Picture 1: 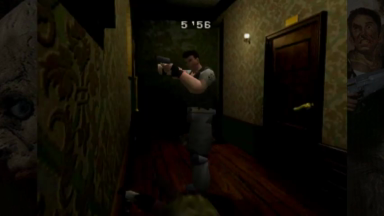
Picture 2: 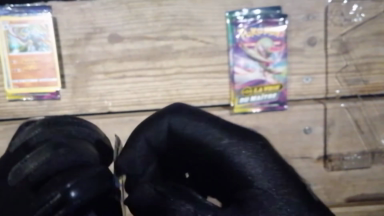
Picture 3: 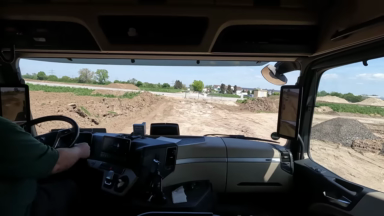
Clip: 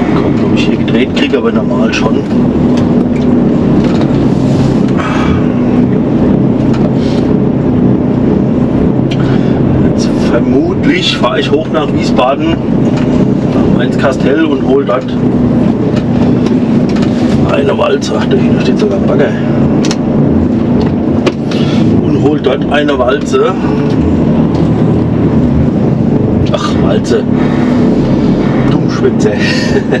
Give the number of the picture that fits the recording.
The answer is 3